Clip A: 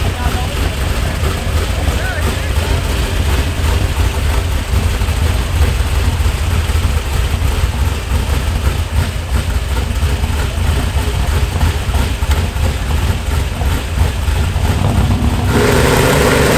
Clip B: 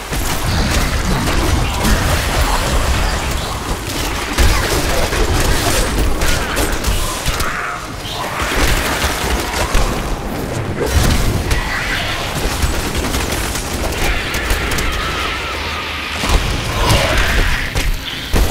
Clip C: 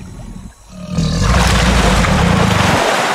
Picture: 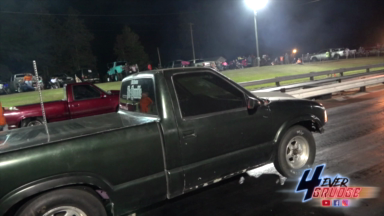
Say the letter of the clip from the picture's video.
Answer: A